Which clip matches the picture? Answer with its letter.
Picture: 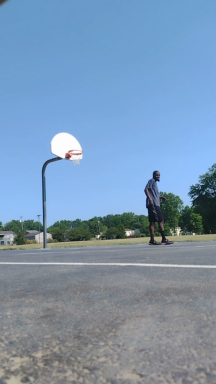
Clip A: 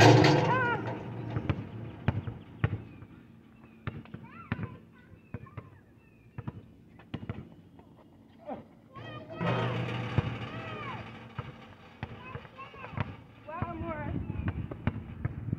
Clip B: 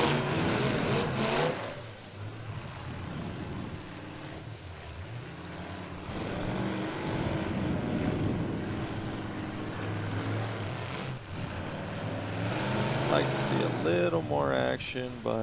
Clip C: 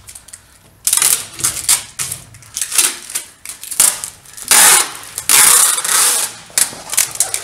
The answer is A